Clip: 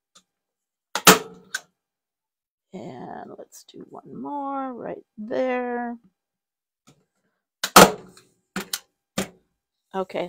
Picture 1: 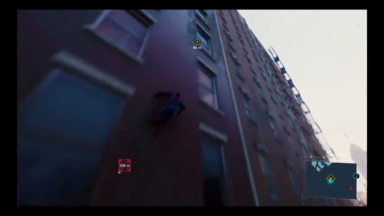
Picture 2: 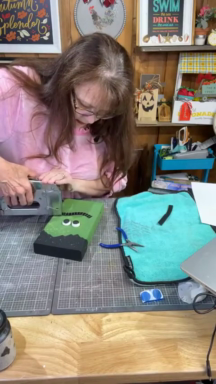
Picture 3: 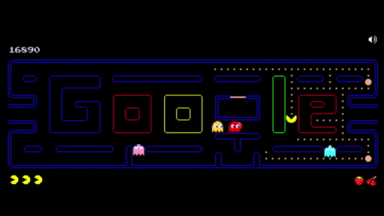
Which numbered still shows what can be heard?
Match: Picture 2